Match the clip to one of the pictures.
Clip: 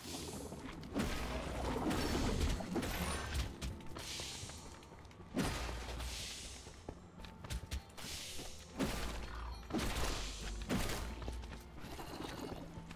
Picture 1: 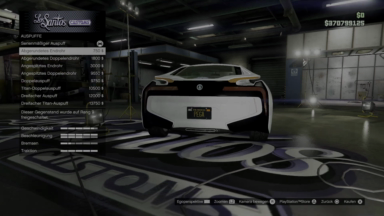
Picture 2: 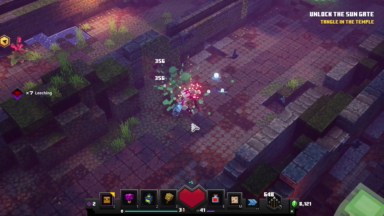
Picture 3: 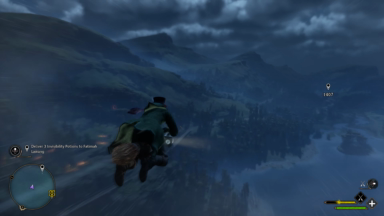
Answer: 2